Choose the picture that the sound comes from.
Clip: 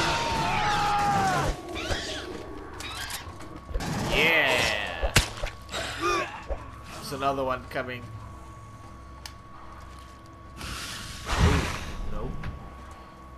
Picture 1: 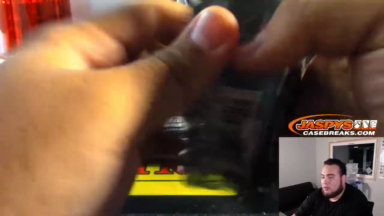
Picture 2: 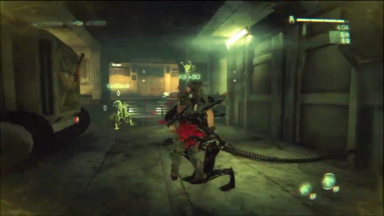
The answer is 2